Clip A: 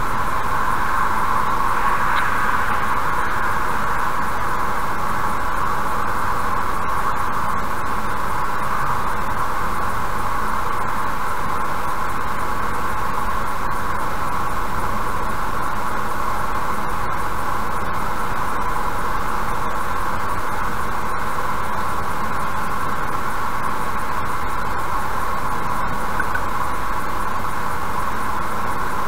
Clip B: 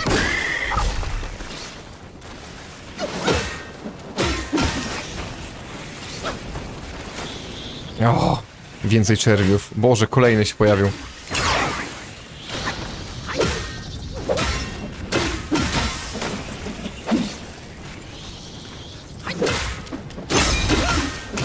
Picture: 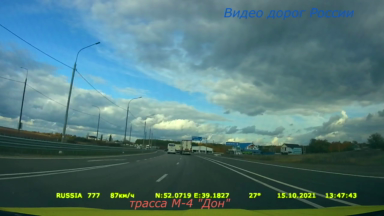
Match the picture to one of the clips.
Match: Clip A